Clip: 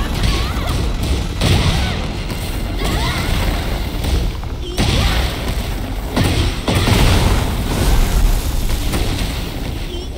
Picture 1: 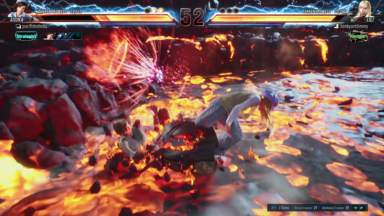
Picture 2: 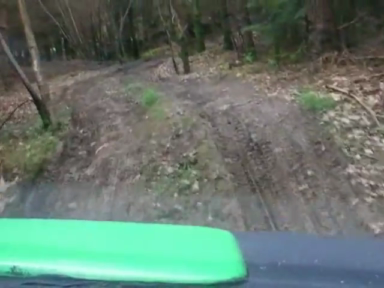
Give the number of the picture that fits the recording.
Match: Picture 1